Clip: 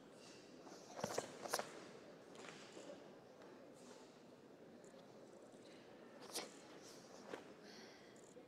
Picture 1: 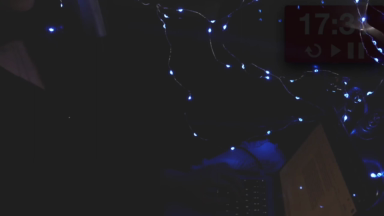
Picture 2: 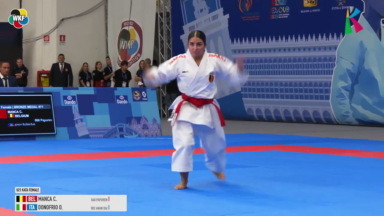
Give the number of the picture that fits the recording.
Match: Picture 2